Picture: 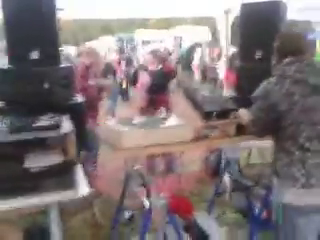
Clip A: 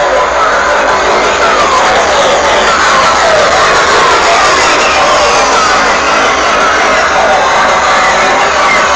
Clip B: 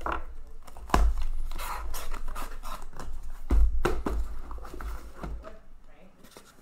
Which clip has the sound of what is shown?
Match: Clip A